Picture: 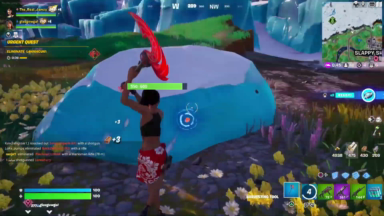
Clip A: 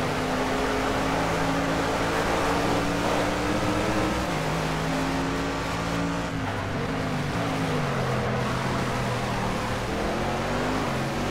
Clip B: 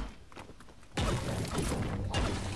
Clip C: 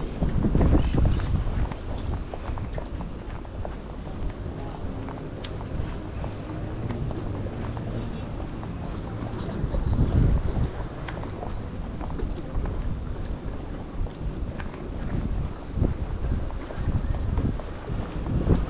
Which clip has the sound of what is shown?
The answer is B